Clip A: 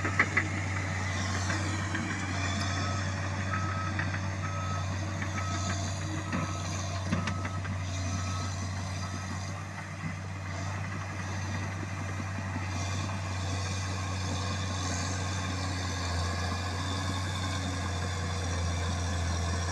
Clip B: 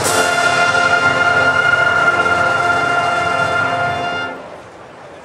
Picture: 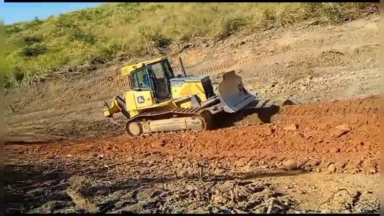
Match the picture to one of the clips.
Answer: A